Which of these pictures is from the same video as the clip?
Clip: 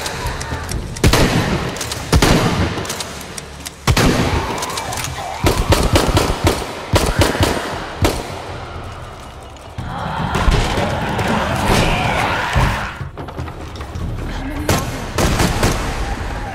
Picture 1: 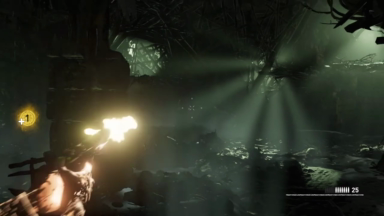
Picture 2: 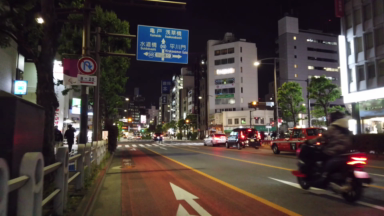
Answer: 1